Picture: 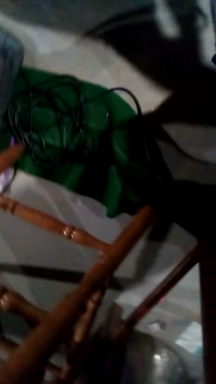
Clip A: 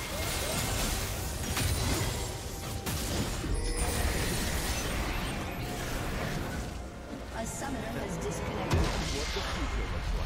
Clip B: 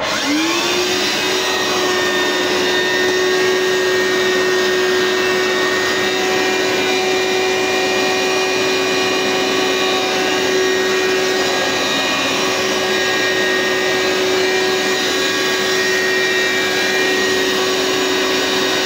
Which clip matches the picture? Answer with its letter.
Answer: B